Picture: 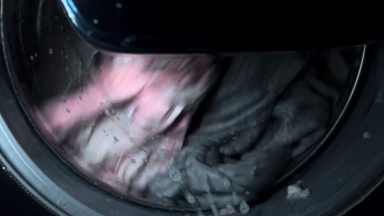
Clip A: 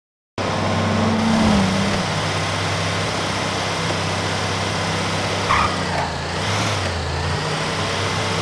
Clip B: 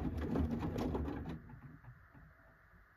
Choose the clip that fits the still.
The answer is B